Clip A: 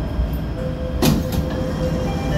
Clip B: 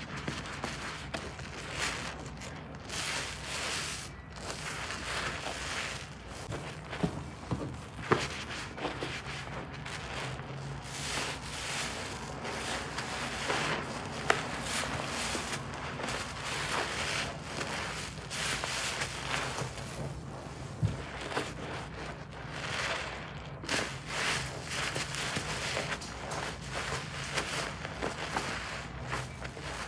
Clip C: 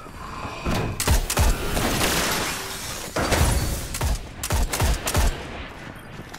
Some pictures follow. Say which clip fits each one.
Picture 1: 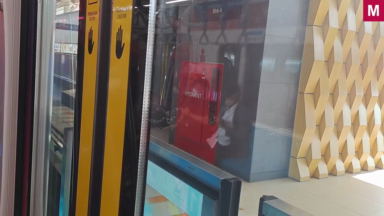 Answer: A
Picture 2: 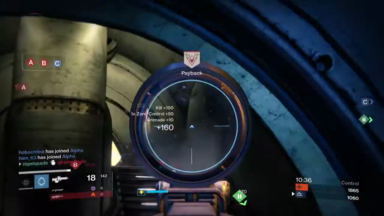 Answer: C